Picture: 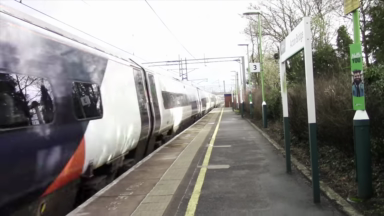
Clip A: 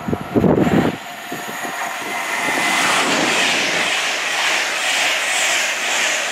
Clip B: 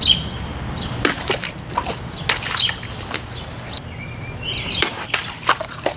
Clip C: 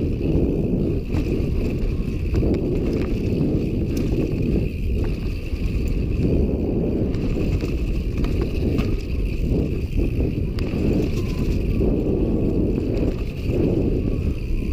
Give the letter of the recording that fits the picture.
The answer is A